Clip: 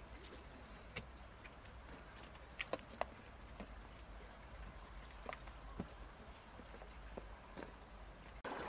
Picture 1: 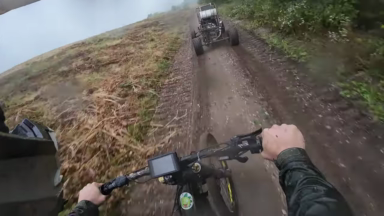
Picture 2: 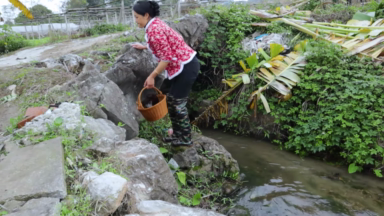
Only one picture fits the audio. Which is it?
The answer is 2